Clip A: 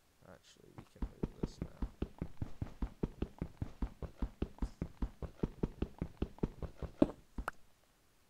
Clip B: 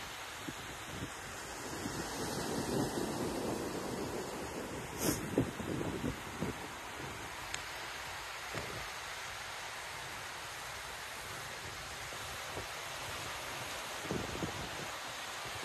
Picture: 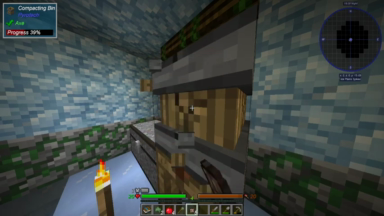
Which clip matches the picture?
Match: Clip A